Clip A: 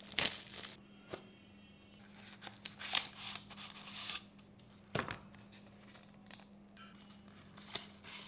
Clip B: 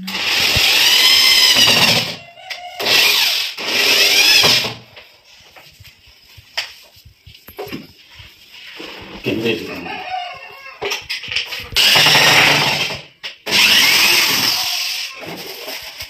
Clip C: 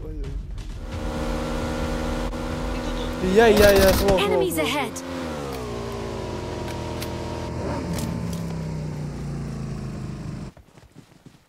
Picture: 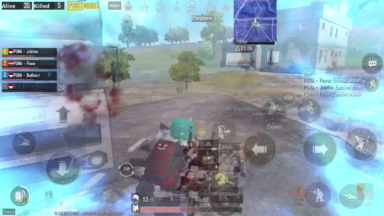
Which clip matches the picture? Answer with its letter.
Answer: C